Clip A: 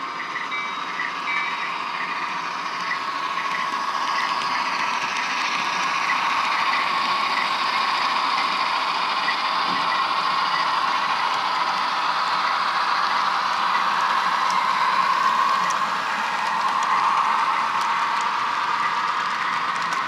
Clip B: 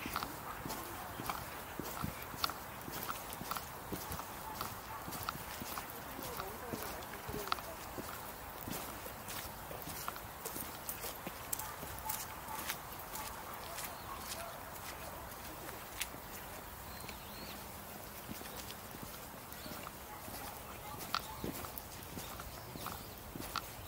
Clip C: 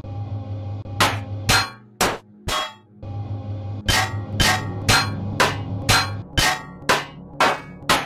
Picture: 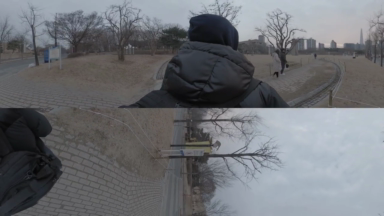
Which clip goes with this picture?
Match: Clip B